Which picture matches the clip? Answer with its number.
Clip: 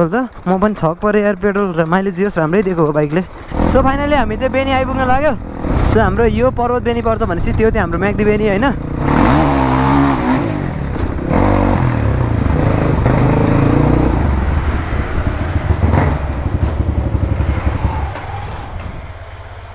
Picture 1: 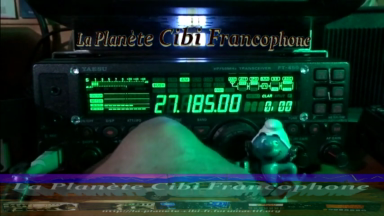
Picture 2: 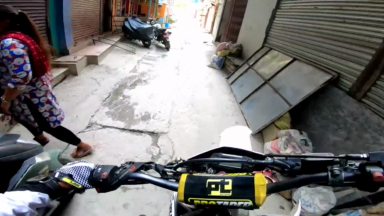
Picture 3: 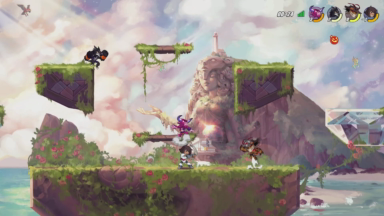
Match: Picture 2